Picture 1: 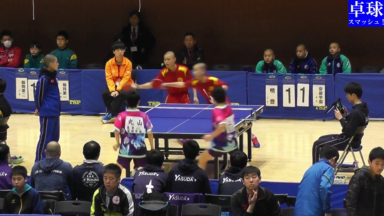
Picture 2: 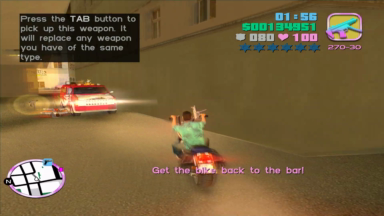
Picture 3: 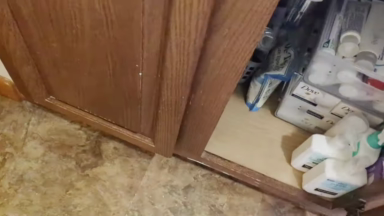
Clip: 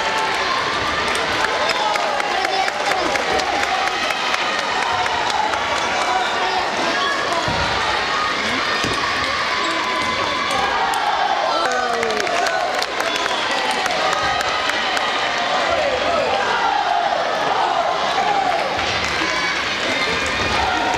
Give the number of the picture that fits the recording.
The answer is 1